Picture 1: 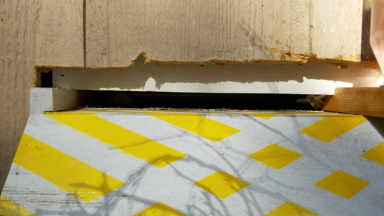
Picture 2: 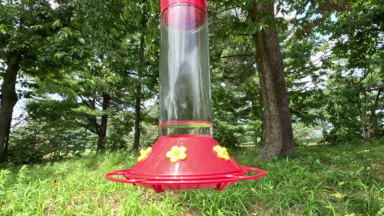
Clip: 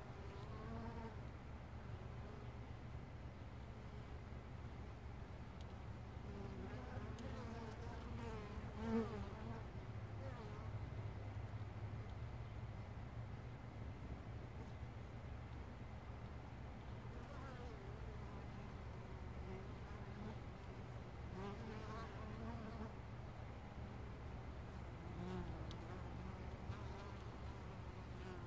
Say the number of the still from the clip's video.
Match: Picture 1